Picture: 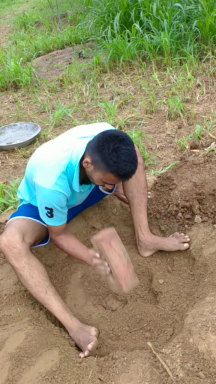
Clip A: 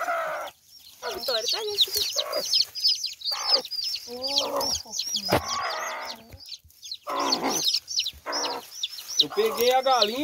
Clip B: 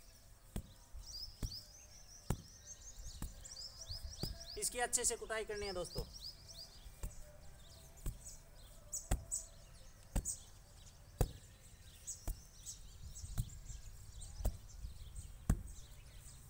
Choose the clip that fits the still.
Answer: B